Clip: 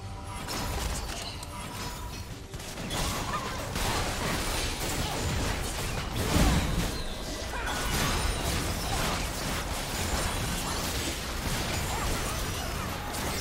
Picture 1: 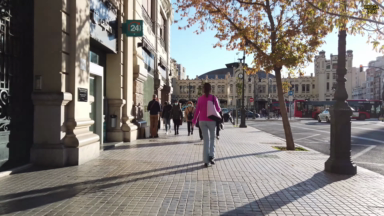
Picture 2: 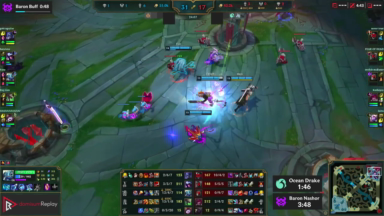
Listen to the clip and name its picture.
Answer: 2